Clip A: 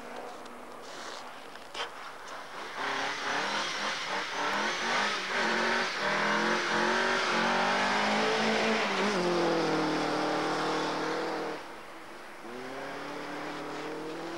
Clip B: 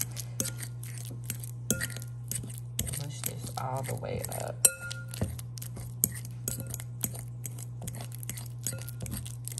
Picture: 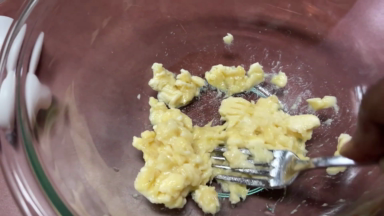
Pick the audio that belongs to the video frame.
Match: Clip B